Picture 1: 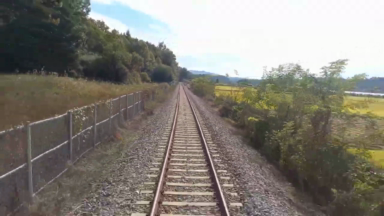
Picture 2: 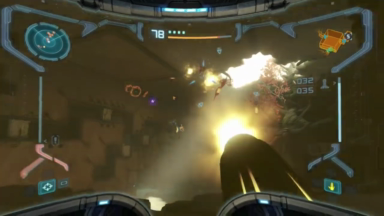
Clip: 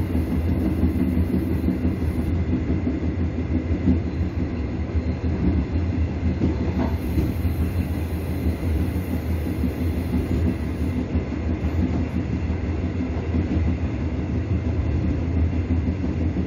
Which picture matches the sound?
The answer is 1